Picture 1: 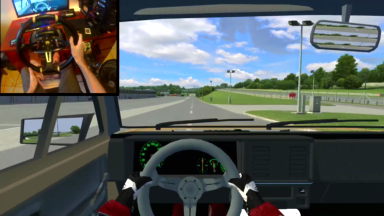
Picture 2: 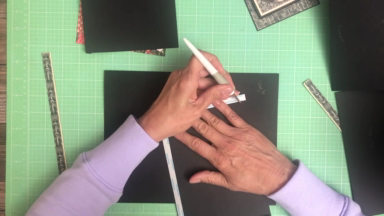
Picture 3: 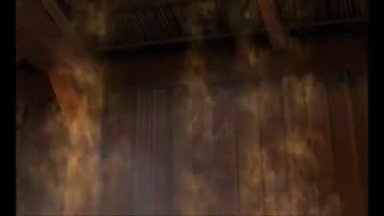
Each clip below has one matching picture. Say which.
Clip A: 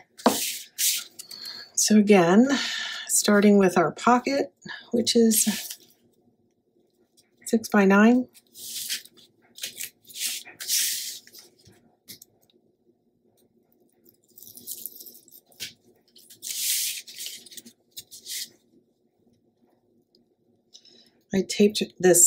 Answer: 2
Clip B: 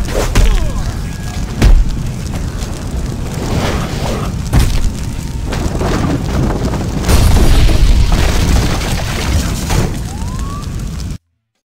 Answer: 3